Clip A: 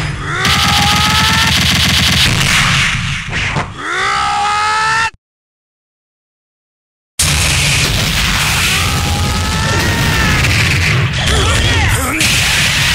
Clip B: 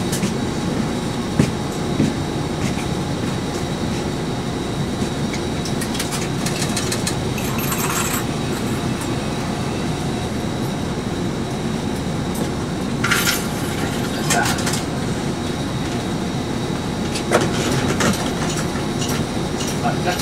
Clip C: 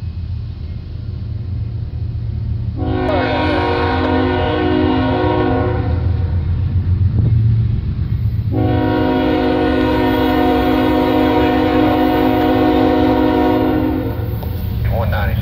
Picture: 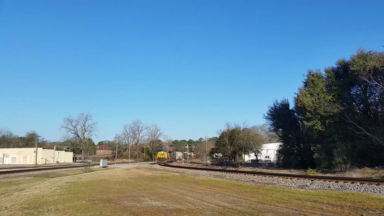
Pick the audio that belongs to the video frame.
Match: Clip C